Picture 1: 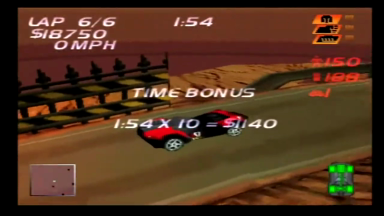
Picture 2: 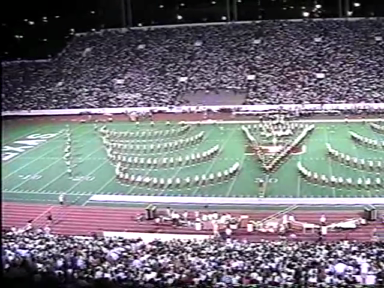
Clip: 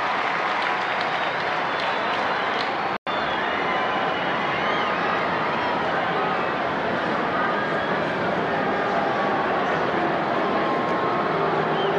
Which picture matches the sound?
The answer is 2